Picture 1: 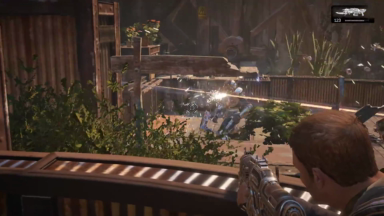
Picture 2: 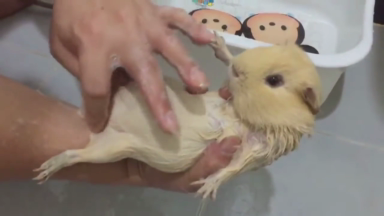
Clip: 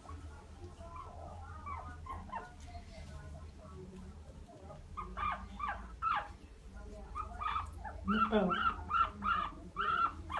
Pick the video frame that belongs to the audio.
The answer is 2